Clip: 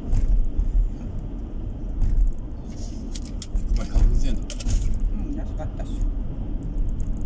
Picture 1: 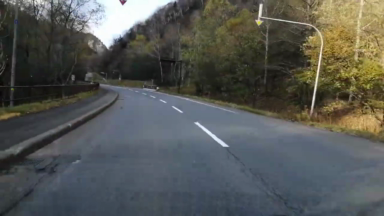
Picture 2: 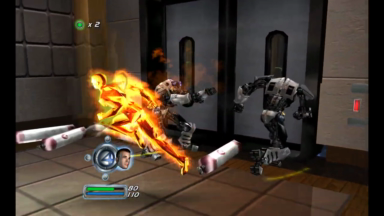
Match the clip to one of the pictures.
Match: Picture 1